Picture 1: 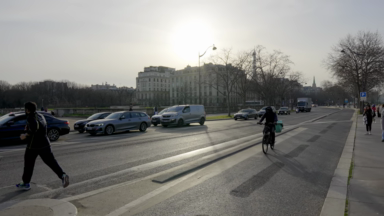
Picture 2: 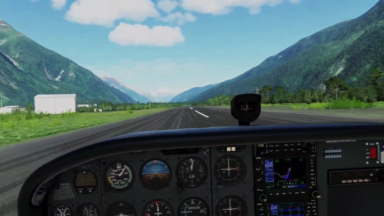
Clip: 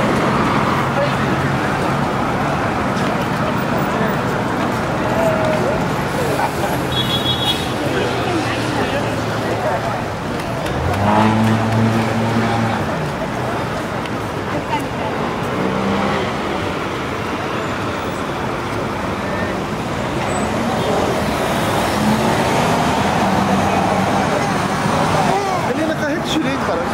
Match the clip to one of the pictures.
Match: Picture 1